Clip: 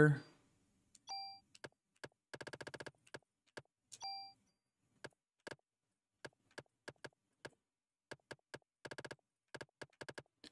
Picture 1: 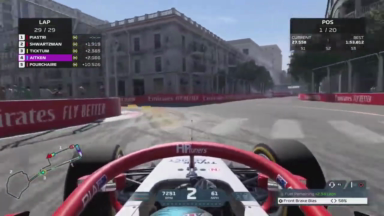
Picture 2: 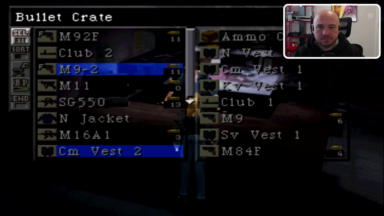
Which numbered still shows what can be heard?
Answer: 2